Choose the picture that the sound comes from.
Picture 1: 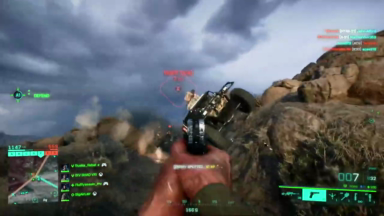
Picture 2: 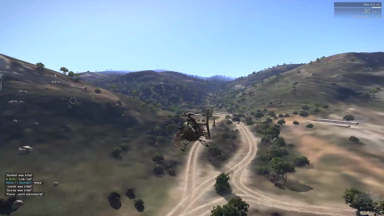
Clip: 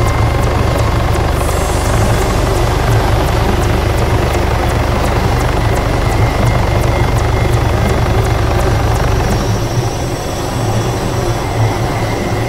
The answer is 2